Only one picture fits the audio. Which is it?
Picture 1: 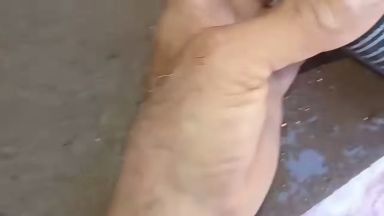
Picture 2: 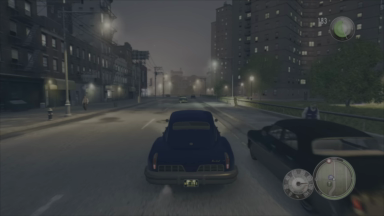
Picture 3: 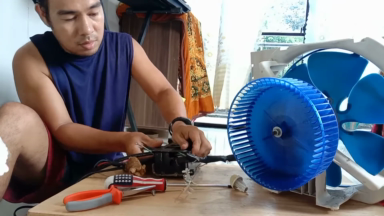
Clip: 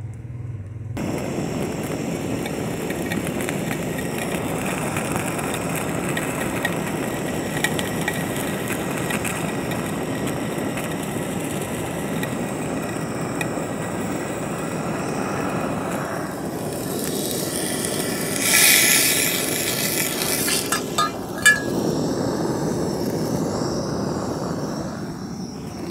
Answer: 1